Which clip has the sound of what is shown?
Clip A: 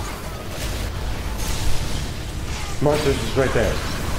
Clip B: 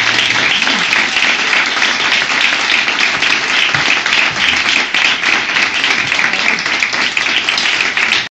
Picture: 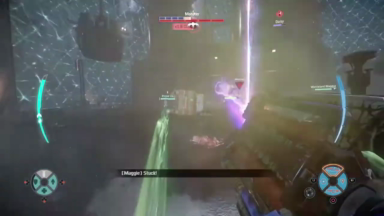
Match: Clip A